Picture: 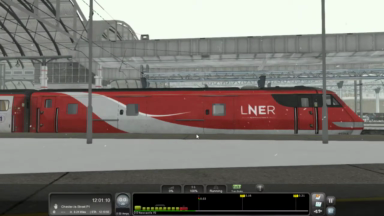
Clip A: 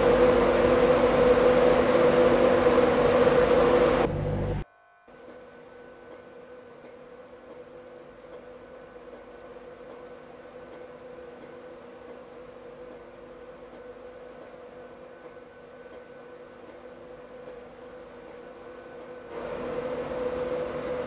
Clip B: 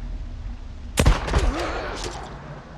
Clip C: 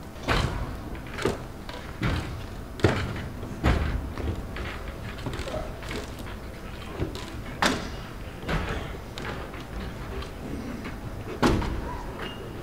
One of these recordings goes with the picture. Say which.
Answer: A